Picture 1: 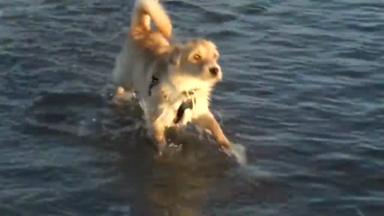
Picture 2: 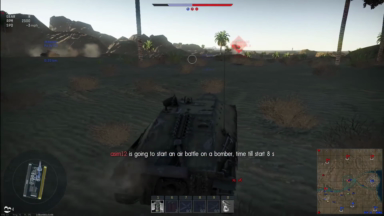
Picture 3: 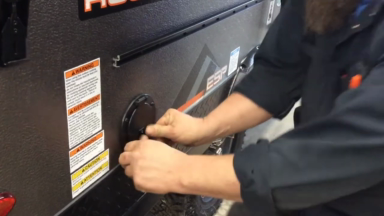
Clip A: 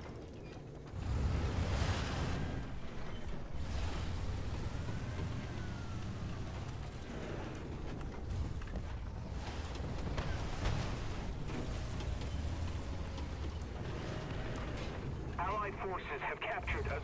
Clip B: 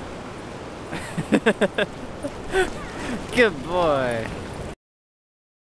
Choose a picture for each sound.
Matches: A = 2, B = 1